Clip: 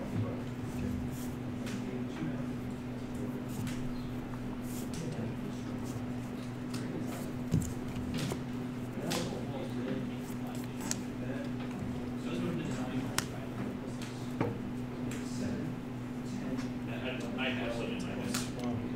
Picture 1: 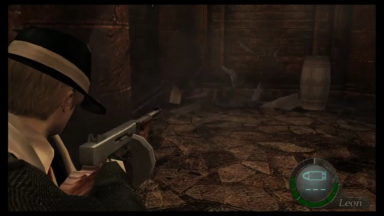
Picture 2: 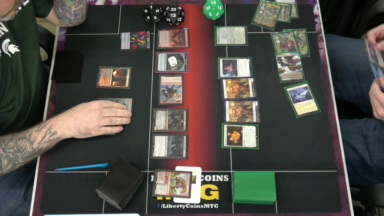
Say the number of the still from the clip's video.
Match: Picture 2